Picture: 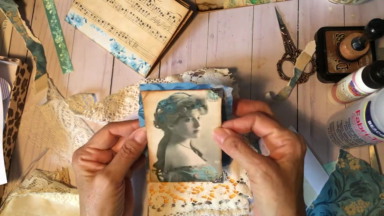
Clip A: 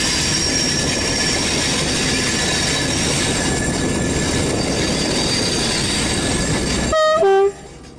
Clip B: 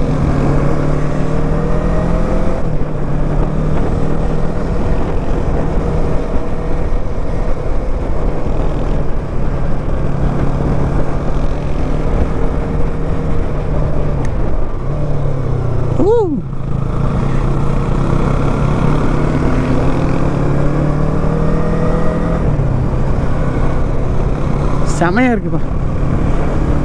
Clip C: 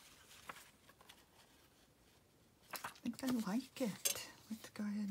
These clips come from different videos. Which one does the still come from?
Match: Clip C